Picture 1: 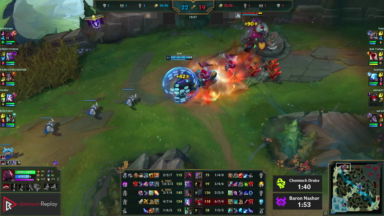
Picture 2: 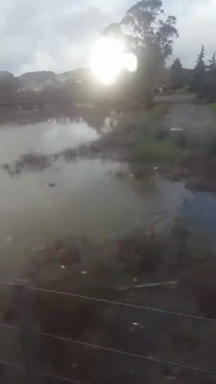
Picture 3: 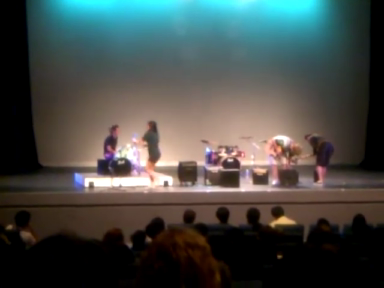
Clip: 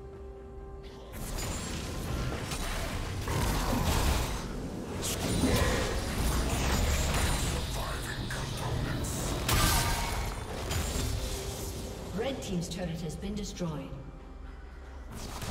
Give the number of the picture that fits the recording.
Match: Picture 1